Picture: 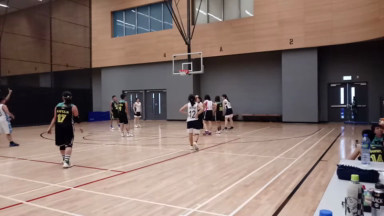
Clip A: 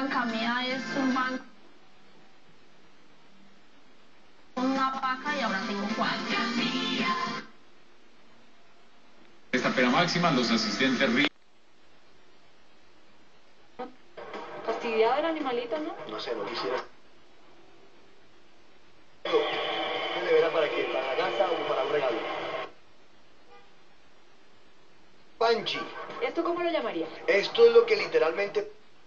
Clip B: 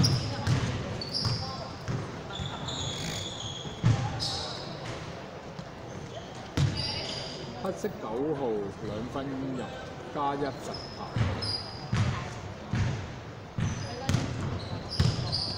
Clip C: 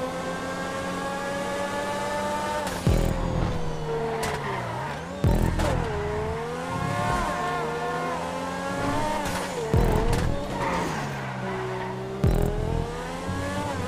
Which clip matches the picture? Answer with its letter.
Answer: B